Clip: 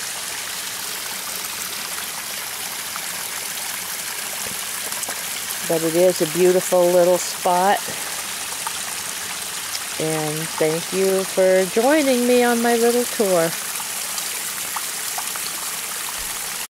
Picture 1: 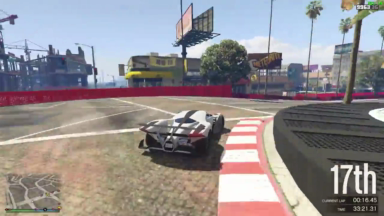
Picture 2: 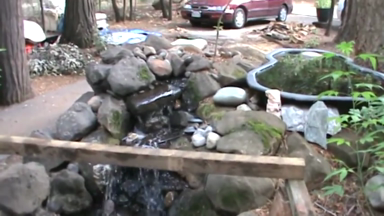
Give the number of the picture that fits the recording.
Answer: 2